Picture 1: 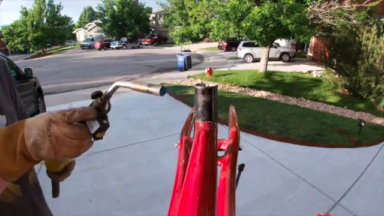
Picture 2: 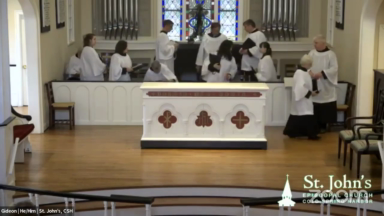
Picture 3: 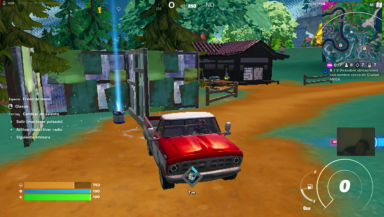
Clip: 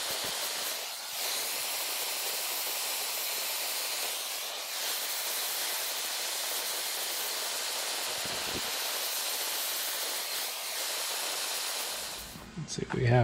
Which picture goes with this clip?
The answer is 1